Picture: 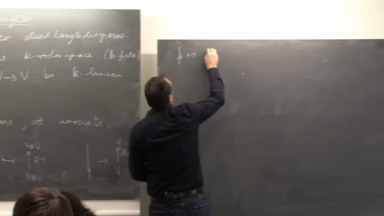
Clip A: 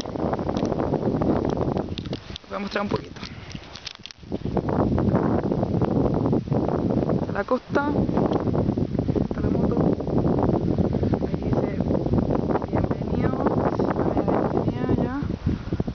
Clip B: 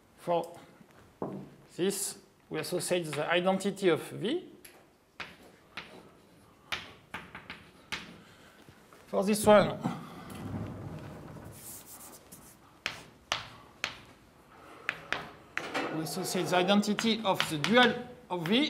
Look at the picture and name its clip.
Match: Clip B